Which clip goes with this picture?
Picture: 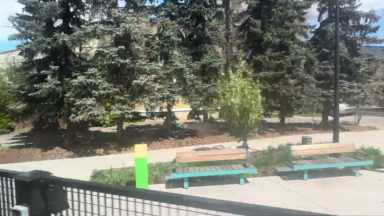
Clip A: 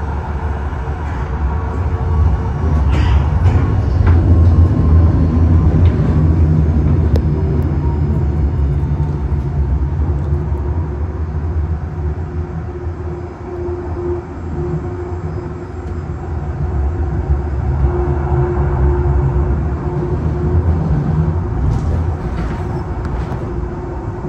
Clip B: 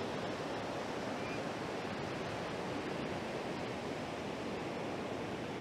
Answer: A